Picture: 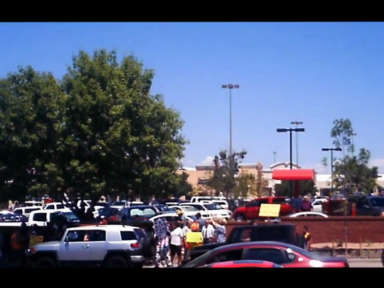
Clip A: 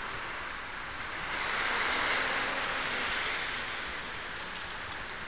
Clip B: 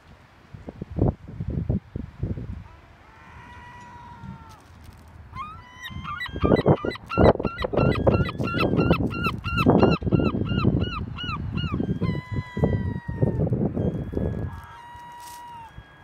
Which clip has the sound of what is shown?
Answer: A